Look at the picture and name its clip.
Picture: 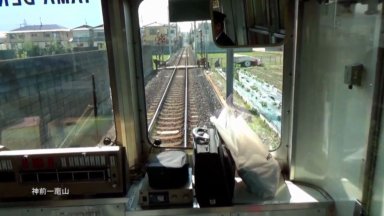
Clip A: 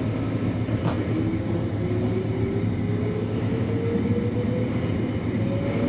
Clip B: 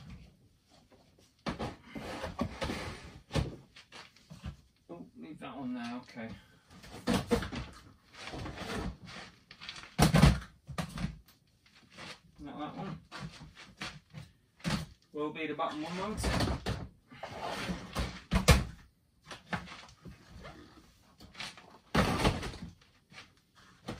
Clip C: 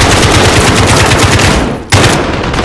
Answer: A